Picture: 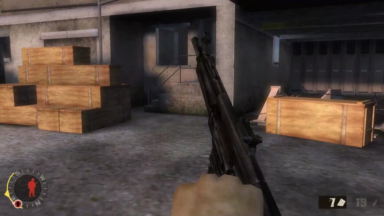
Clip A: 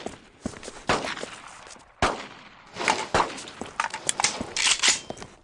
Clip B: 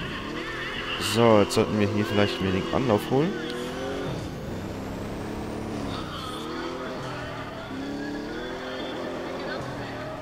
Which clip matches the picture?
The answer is A